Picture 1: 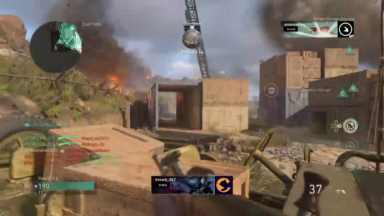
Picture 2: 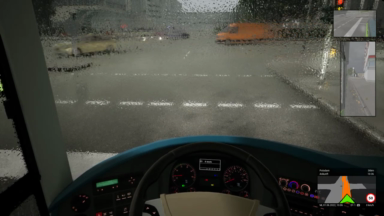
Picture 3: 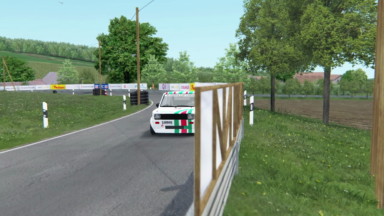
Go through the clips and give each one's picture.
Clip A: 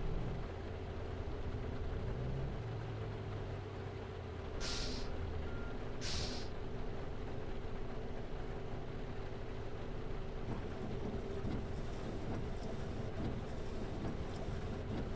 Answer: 2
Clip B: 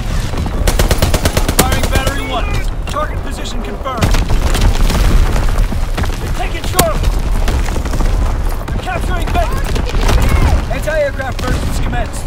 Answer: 1